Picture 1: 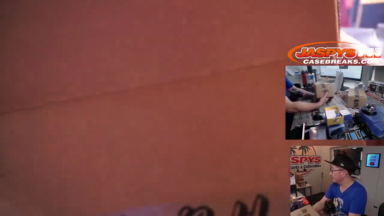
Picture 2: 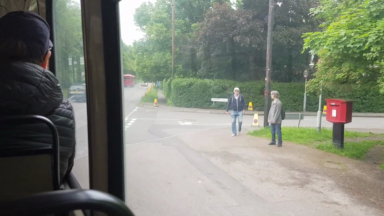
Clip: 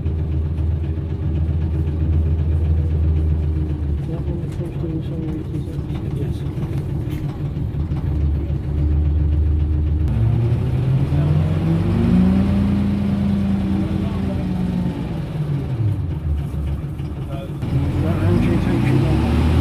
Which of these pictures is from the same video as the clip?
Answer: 2